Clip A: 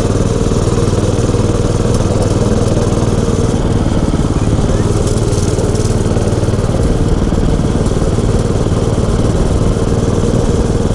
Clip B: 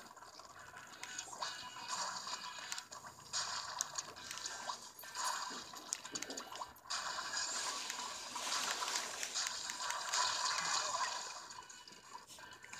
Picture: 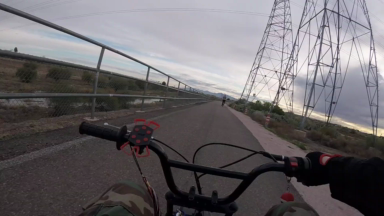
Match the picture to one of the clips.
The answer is A